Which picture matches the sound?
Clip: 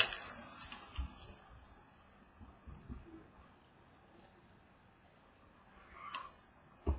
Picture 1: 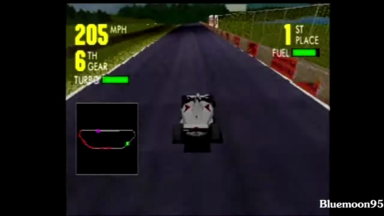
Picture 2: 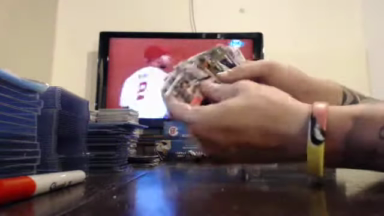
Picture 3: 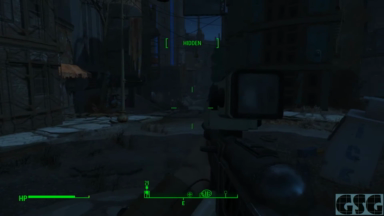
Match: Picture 2